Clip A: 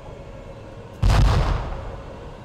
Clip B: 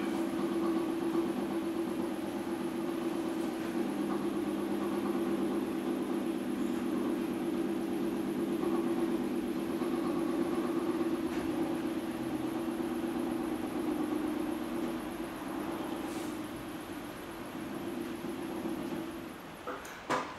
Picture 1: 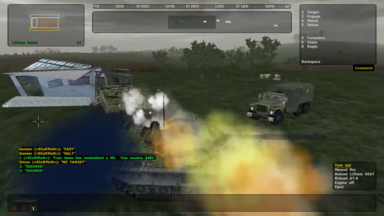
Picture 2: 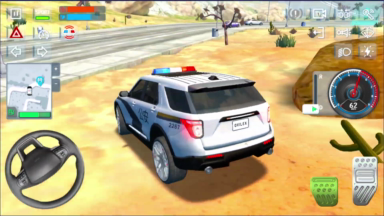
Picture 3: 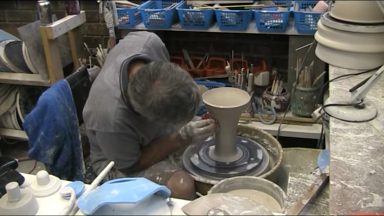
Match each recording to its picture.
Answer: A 1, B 3